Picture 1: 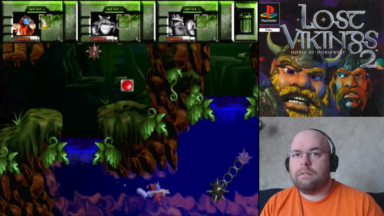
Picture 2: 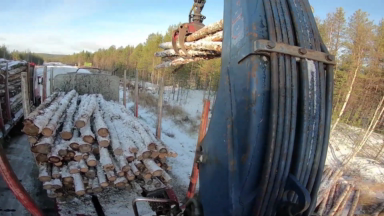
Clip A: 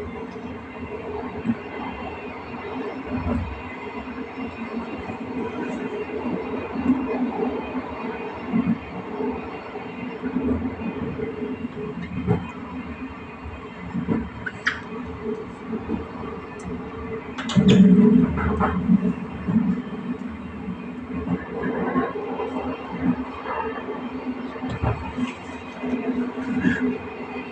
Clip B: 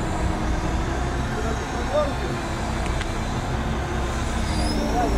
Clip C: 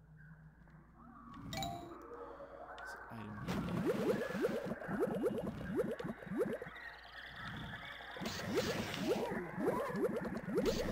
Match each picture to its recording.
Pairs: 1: C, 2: B